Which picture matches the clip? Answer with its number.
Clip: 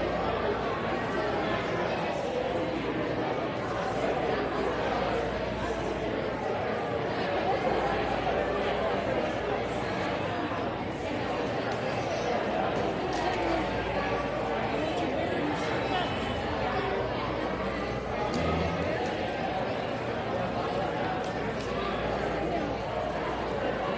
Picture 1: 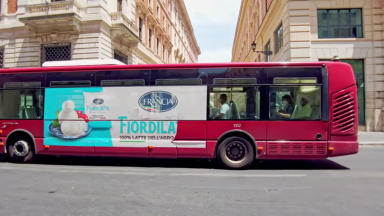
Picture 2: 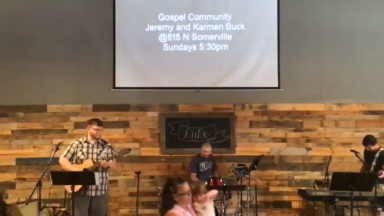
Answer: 2